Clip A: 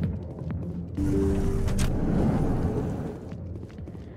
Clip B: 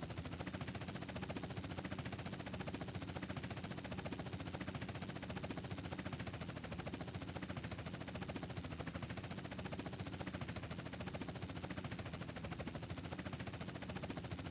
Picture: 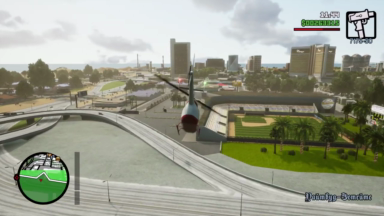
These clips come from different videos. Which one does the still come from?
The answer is B